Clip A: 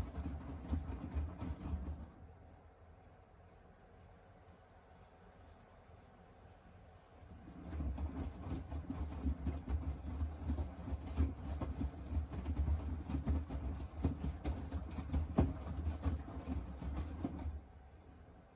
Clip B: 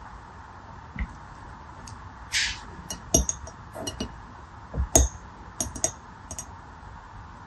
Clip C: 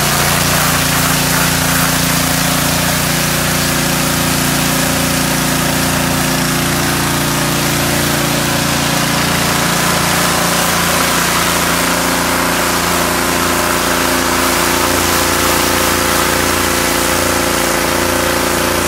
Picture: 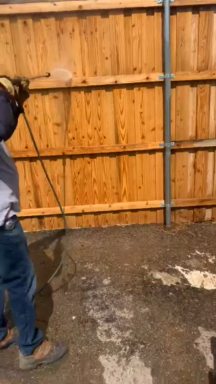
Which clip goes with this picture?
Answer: C